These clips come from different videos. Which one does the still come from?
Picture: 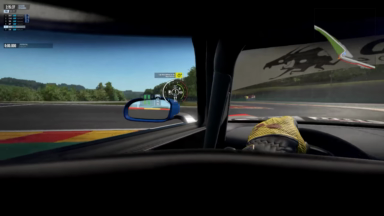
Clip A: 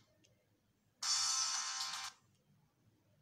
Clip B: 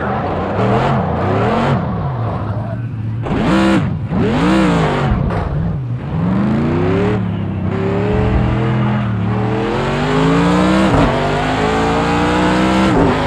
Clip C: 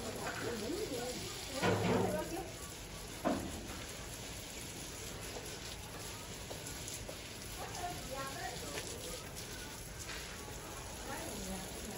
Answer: B